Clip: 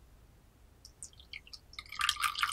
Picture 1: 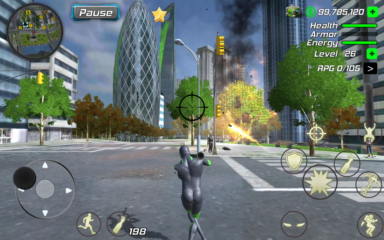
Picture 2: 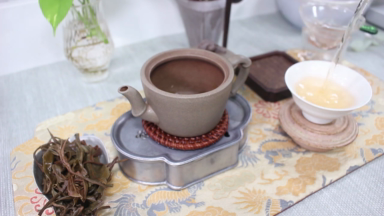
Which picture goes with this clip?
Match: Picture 2